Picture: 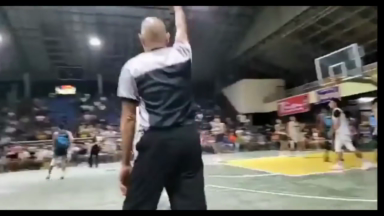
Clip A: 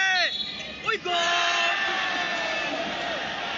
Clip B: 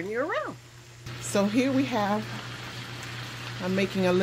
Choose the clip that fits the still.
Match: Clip A